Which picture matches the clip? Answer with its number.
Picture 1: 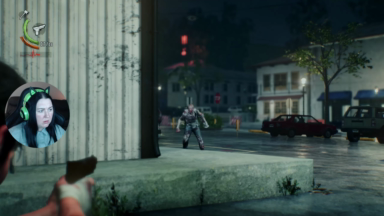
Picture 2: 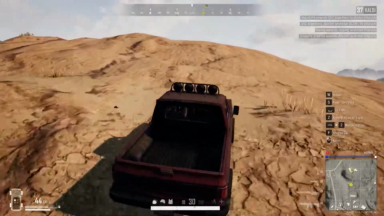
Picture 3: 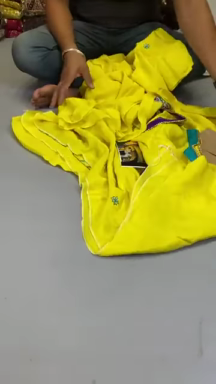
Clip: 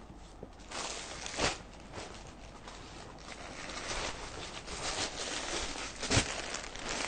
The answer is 3